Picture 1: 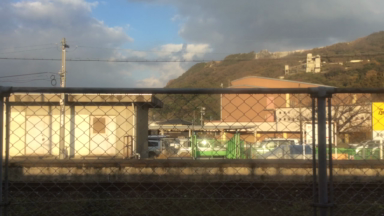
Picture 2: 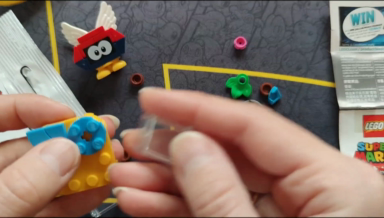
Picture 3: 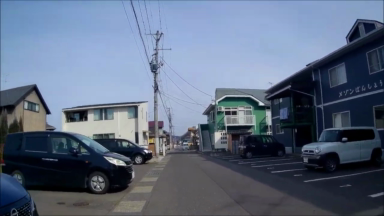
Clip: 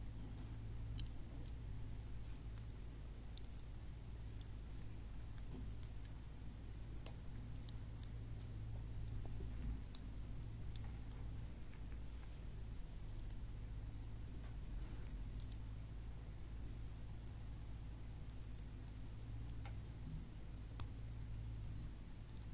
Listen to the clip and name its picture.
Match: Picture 2